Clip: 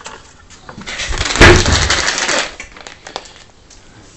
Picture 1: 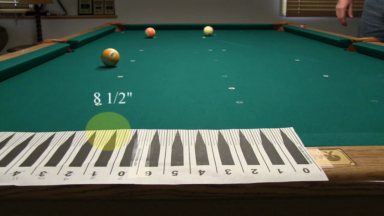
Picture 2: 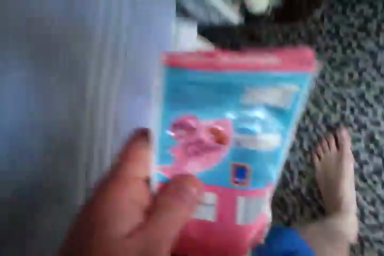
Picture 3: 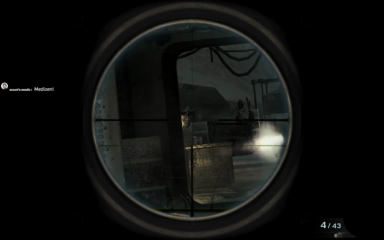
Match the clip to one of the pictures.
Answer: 2